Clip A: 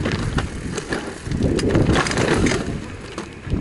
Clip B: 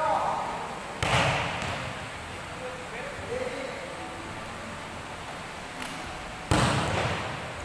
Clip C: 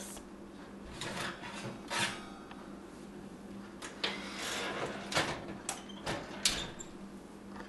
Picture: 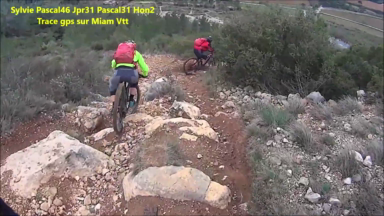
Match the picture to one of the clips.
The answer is A